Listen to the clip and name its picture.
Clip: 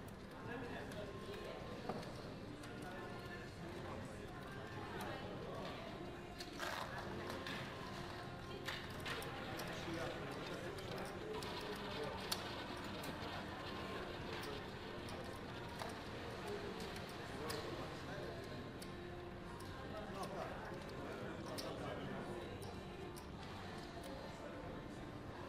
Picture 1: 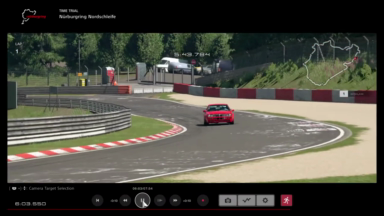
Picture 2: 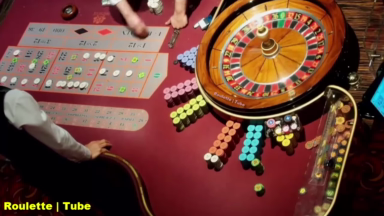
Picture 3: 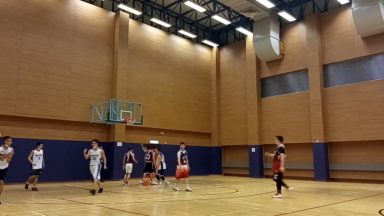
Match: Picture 2